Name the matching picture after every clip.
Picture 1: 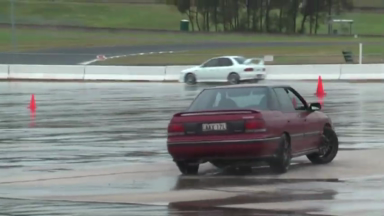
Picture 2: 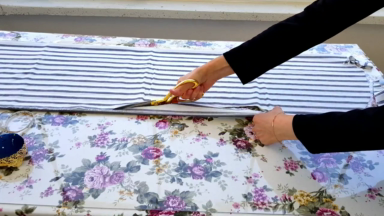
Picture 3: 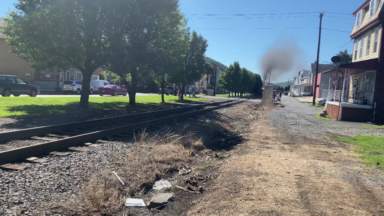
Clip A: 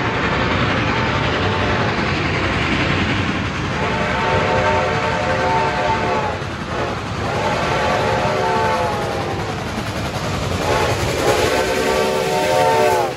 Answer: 3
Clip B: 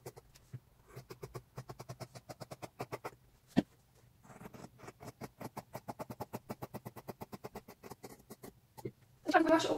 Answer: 2